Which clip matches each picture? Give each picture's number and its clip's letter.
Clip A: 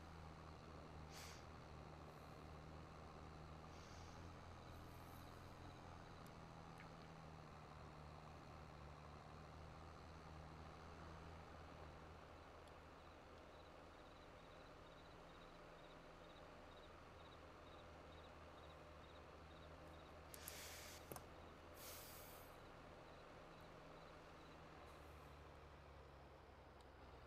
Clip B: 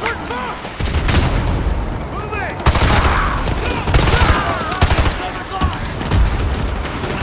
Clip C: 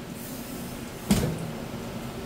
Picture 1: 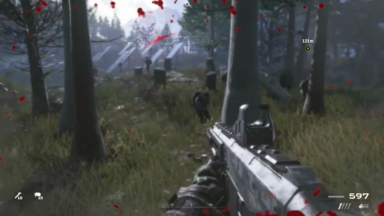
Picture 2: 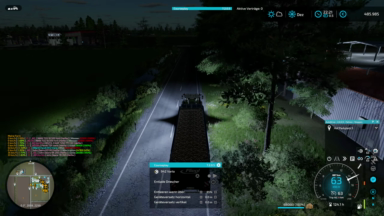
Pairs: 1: B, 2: A